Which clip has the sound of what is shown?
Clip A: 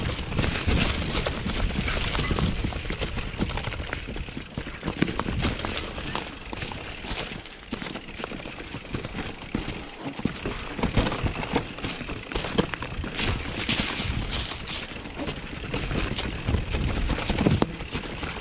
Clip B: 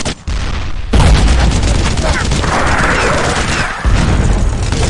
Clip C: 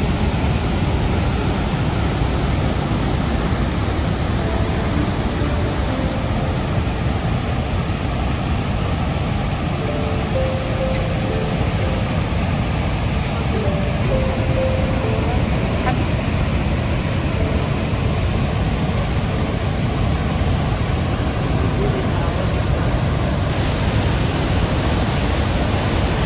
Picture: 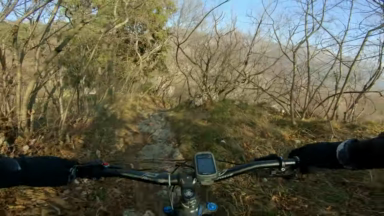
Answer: A